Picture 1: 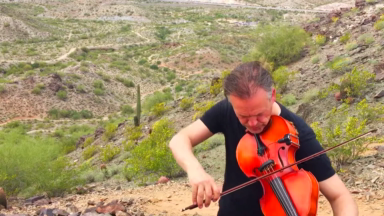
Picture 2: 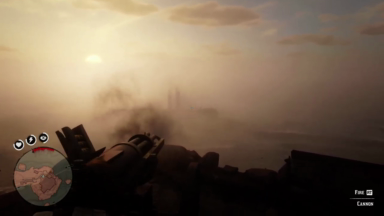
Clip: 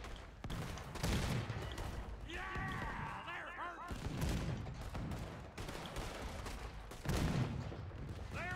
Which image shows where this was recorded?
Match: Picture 2